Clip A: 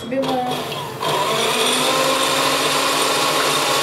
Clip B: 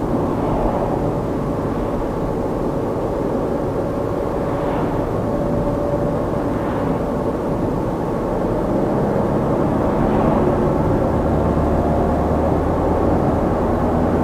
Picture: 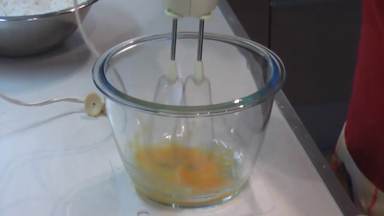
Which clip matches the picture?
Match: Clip A